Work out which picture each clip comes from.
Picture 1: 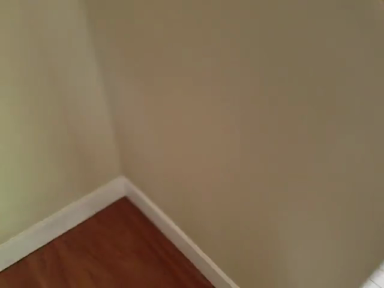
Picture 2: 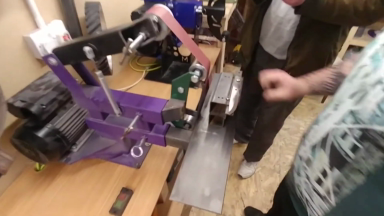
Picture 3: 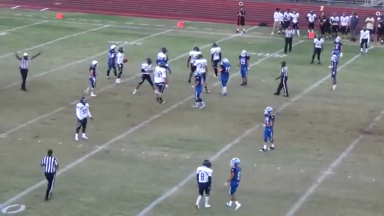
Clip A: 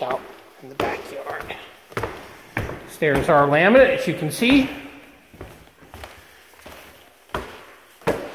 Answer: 1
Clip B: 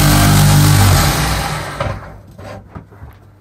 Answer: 2